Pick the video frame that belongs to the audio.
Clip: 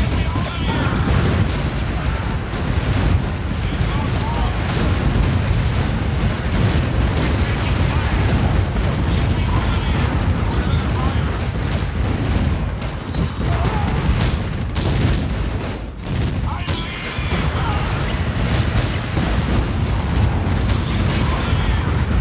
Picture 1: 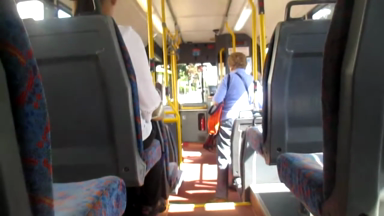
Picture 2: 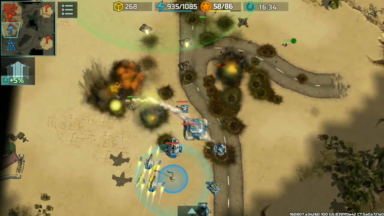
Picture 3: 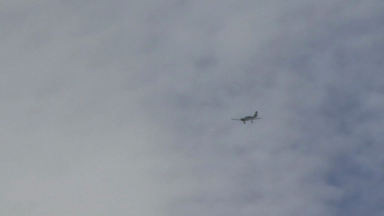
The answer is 2